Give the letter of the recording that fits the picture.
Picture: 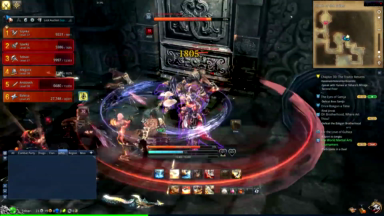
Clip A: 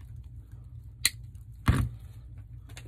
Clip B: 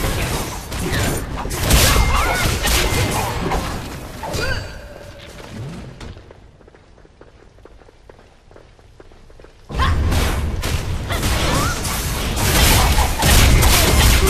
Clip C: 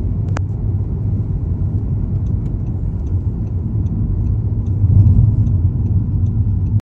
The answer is B